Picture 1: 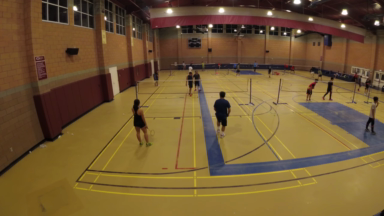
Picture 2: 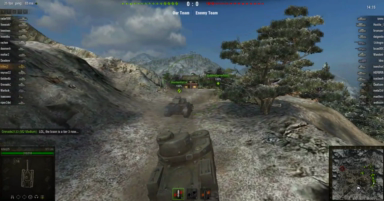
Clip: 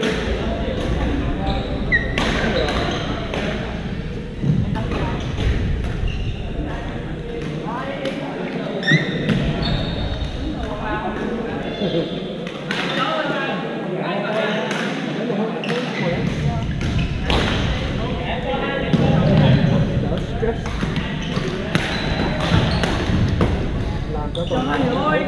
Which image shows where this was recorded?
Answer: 1